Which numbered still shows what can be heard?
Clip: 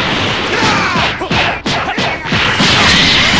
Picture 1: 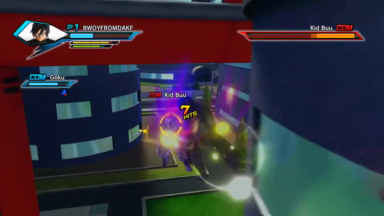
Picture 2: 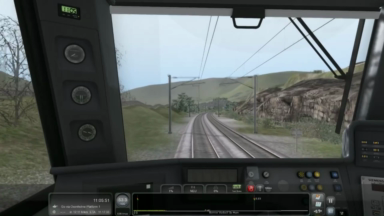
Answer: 1